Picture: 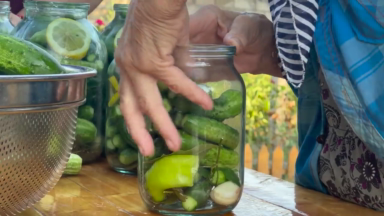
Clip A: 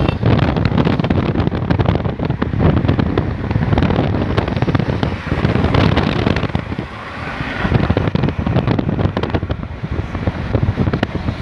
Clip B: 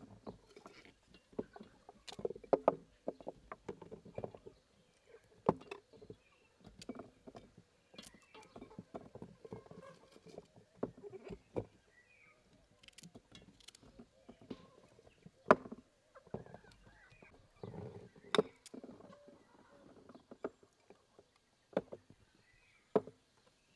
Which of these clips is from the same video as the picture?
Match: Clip B